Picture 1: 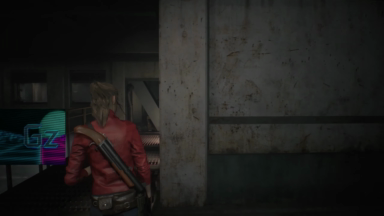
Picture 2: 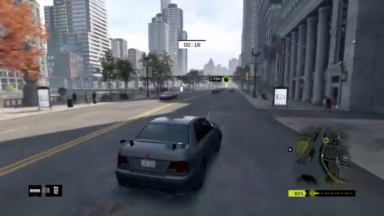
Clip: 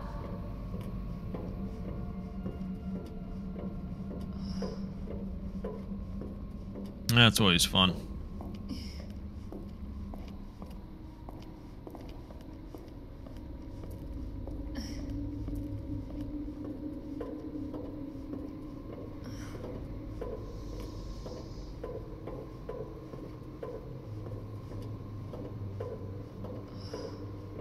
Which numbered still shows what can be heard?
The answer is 1